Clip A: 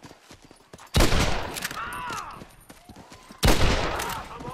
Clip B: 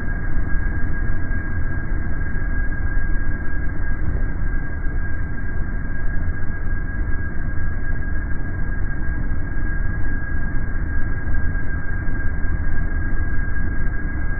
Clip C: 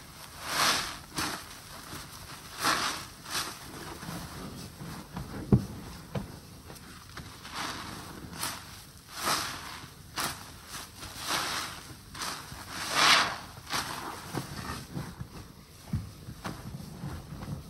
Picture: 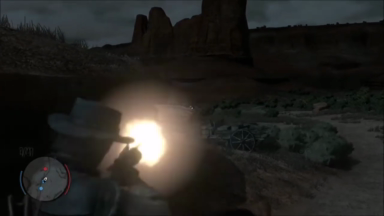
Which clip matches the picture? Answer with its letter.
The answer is A